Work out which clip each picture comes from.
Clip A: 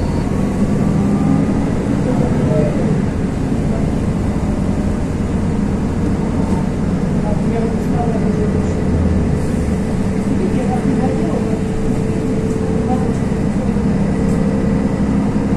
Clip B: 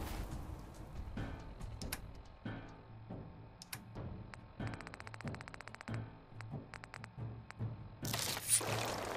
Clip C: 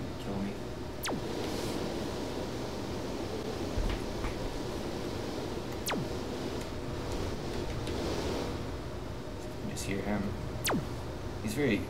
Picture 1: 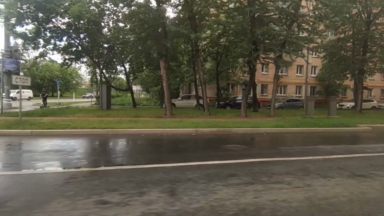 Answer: A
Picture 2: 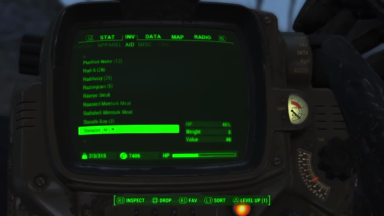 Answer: B